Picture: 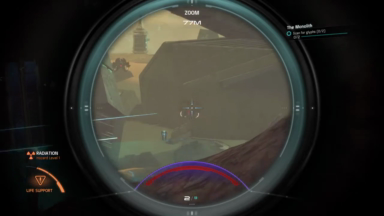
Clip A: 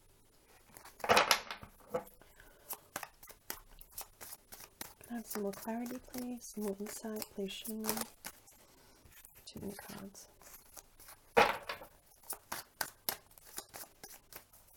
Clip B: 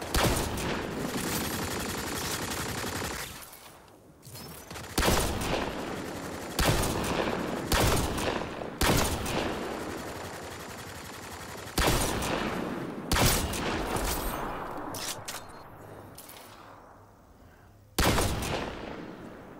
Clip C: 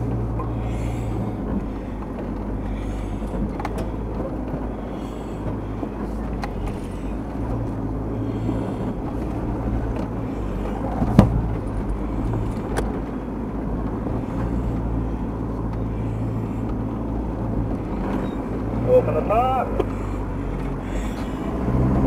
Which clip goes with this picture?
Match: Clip B